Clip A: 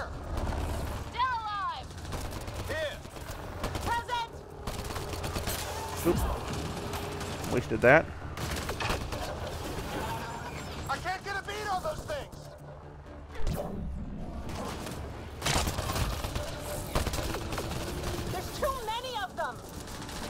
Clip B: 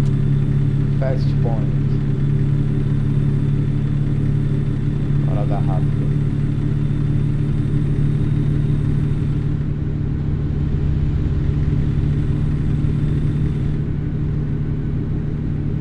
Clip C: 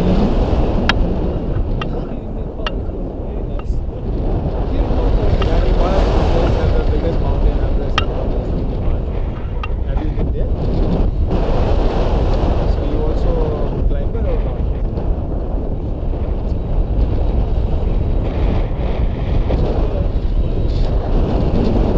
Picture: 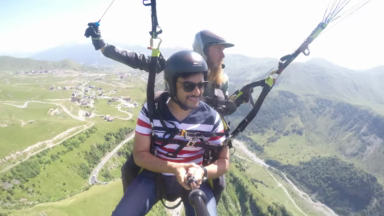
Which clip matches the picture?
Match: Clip C